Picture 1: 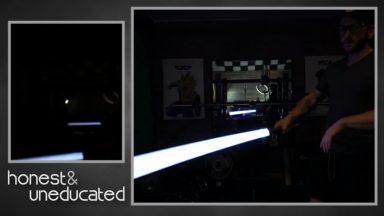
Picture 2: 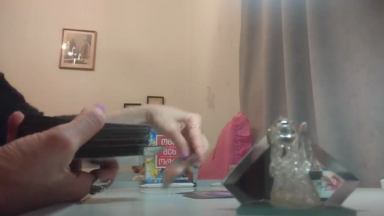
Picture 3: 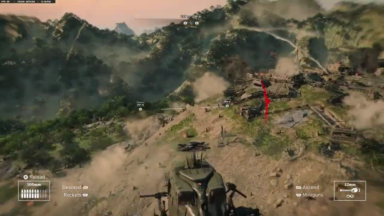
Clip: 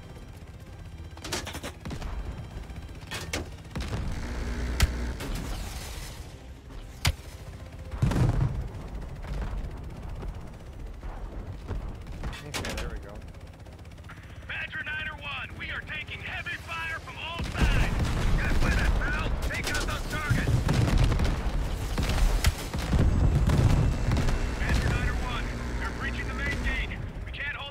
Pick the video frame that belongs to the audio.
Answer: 3